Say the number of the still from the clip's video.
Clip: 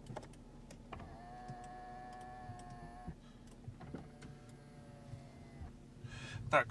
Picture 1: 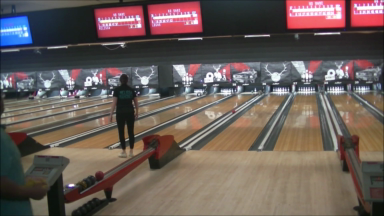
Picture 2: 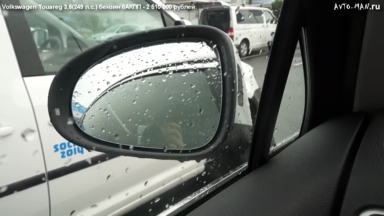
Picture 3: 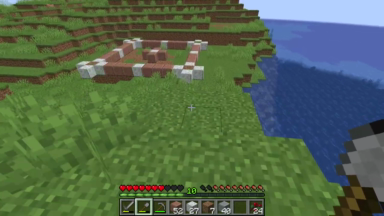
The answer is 2